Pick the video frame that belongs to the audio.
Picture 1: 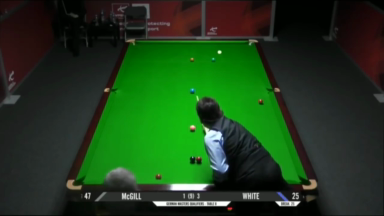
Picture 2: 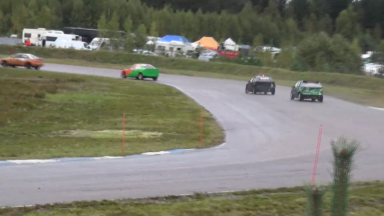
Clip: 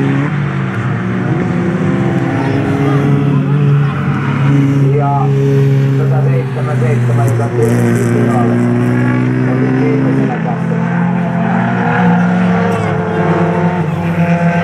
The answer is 2